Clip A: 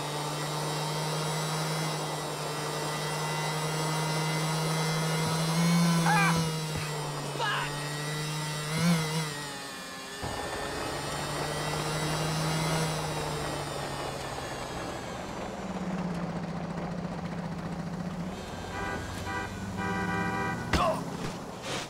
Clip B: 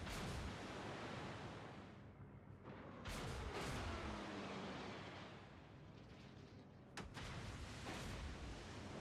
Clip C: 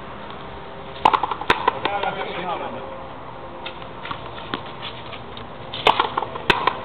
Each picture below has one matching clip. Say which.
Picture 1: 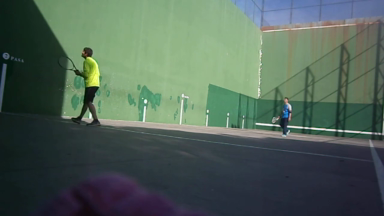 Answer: C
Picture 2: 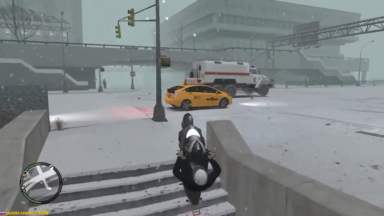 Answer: A